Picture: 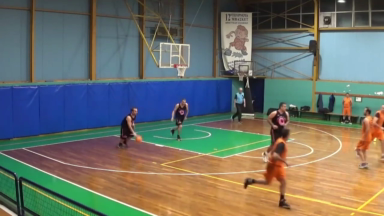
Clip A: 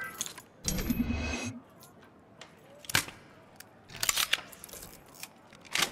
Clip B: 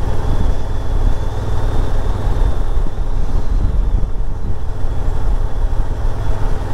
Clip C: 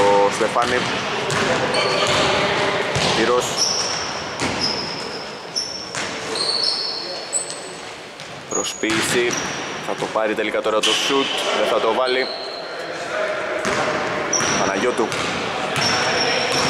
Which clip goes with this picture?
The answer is C